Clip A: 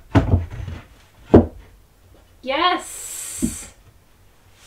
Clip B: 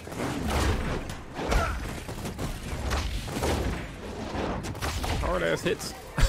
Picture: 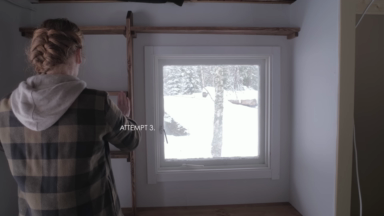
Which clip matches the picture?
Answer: A